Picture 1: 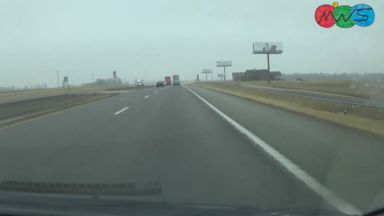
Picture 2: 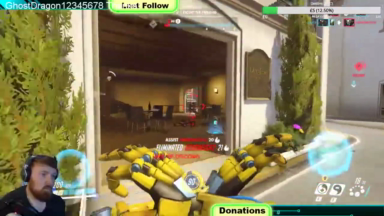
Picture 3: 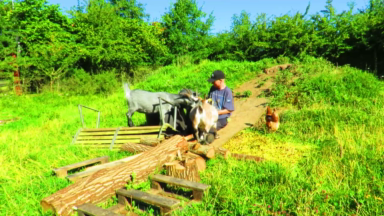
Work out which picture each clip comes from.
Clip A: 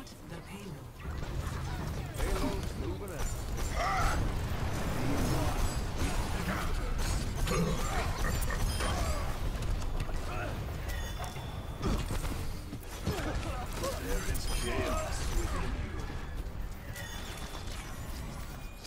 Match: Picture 2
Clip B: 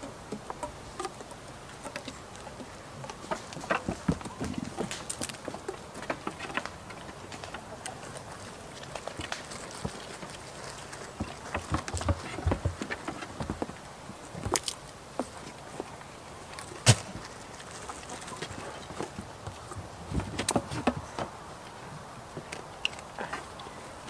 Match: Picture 3